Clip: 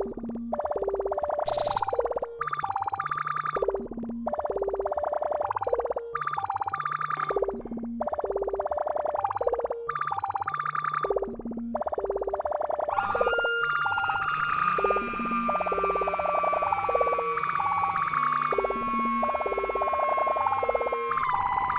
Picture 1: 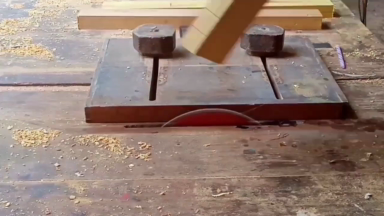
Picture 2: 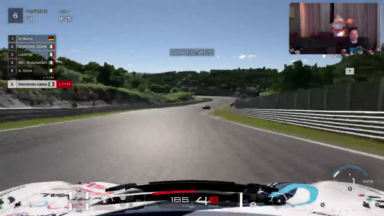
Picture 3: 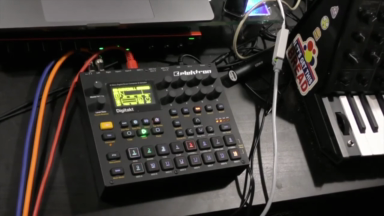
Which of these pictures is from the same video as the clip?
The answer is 3